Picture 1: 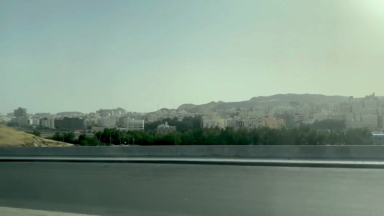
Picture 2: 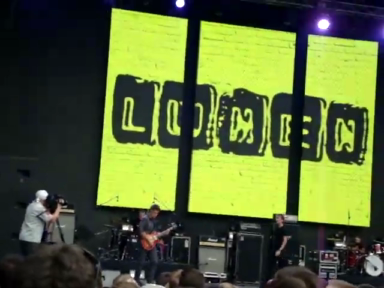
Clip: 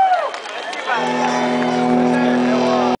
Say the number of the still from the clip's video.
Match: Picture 2